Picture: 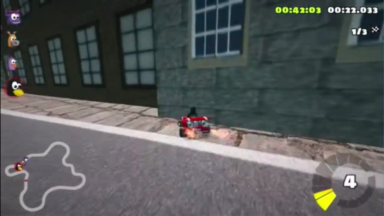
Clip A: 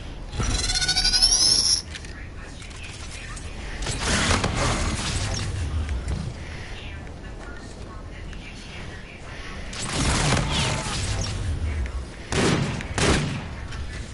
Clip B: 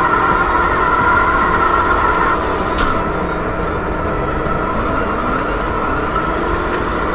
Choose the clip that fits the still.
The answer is B